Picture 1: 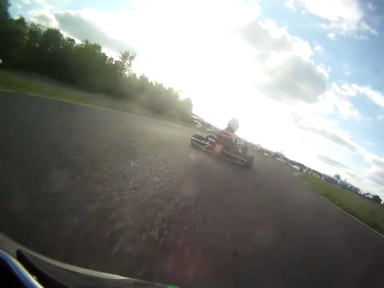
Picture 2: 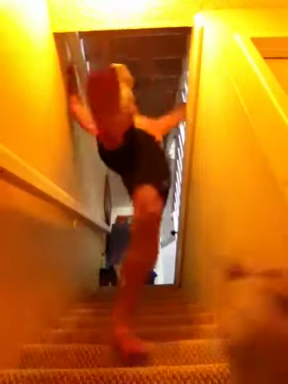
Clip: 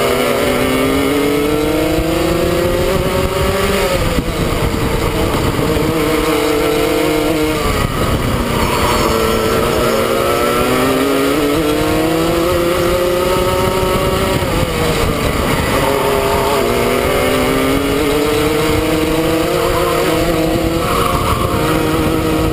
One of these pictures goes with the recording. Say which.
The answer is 1